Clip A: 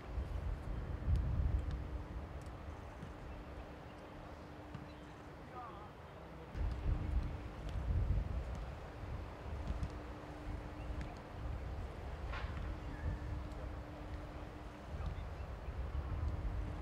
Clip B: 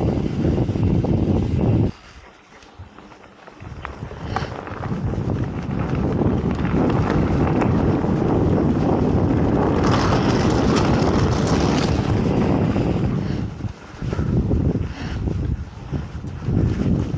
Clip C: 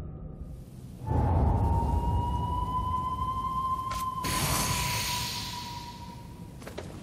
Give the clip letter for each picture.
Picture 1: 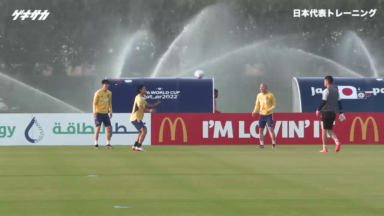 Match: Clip A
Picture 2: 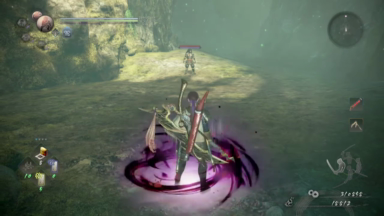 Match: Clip C